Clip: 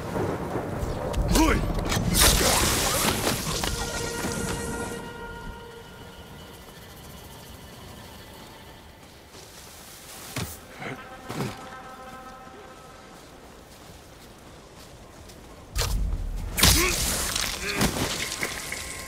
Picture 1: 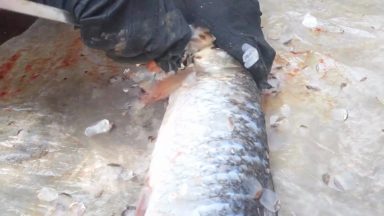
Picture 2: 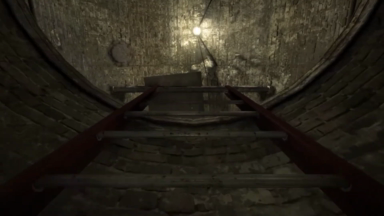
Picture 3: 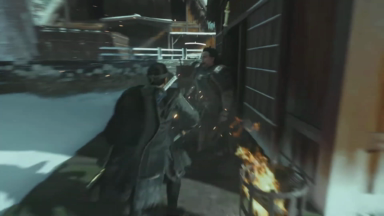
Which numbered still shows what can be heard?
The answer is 3